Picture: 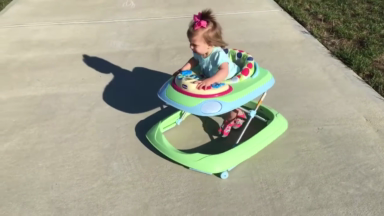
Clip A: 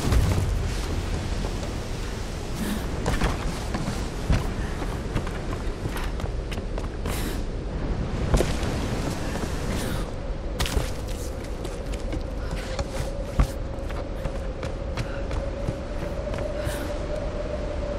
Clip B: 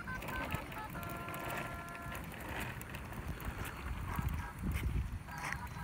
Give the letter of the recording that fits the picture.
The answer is B